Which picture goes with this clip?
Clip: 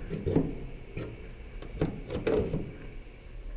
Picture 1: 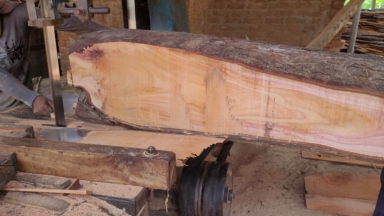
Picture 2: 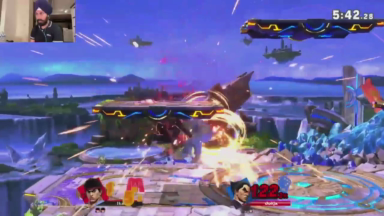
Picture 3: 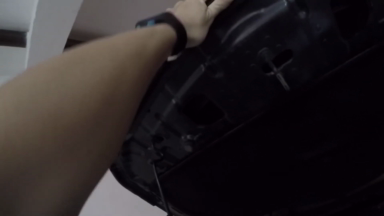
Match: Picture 3